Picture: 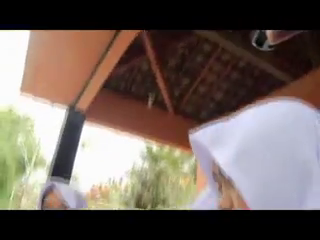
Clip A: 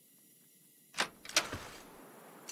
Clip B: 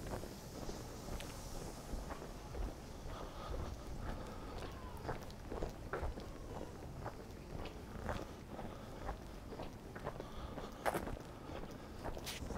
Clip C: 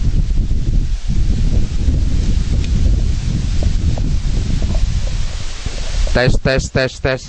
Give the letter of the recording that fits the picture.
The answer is C